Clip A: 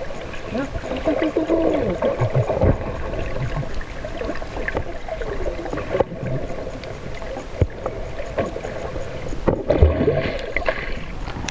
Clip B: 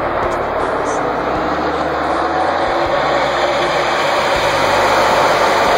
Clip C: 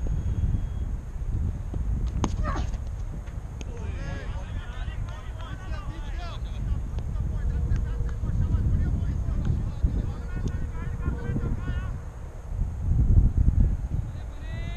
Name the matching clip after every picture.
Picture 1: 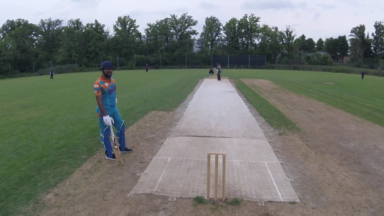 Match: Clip C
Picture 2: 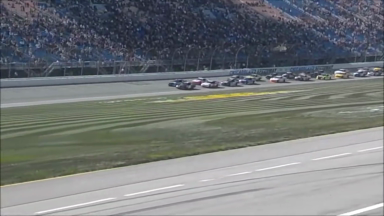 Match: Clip B